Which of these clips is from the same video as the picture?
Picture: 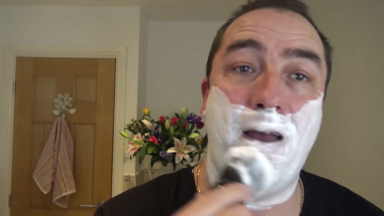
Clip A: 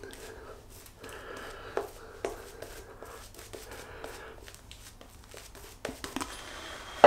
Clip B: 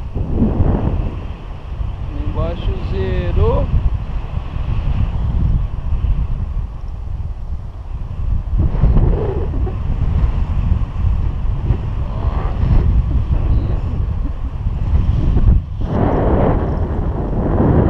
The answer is A